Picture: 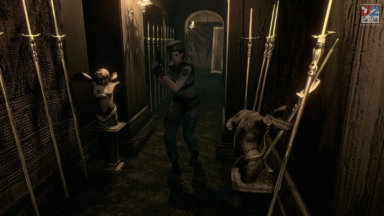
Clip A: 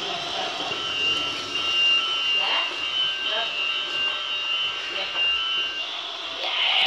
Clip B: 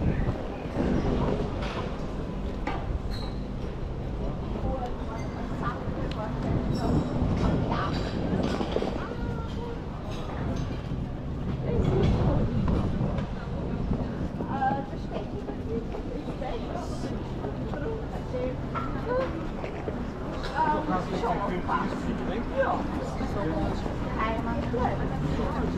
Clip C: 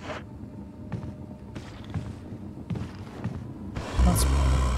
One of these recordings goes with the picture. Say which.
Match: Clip C